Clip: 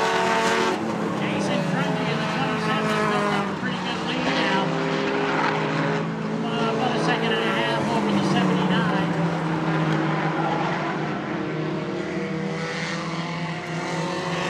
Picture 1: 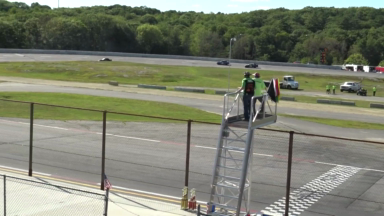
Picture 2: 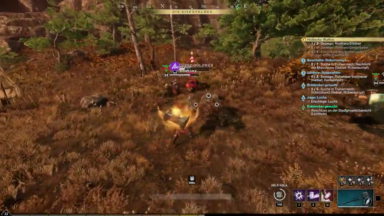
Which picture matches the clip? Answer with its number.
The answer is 1